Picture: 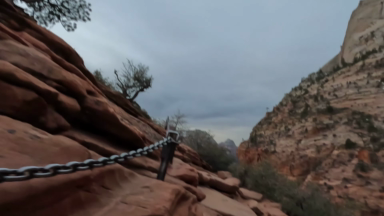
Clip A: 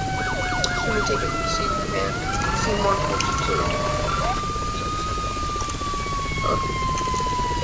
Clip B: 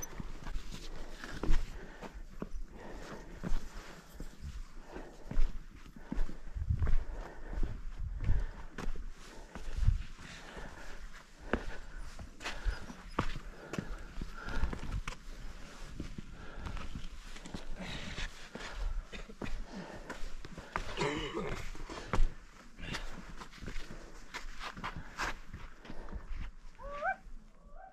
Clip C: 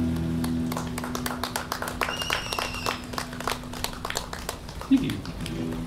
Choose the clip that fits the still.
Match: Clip B